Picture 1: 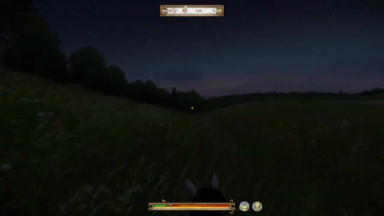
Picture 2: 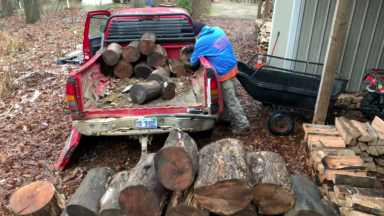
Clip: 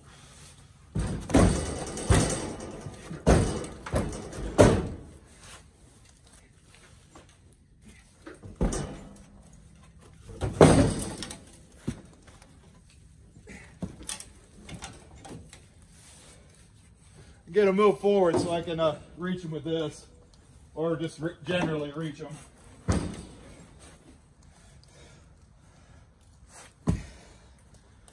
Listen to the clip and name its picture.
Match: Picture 2